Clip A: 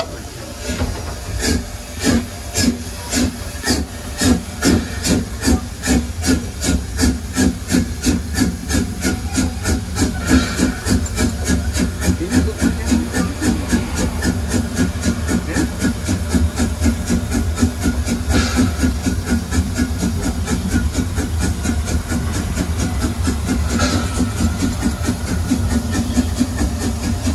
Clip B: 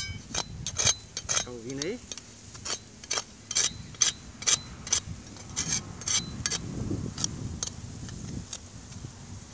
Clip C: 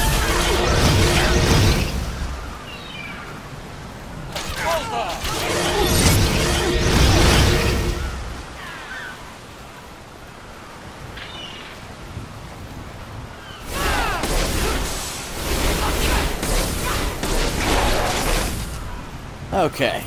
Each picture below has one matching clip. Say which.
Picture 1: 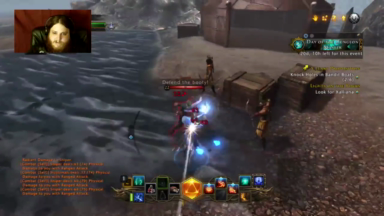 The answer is C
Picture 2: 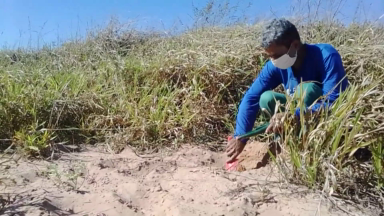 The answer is B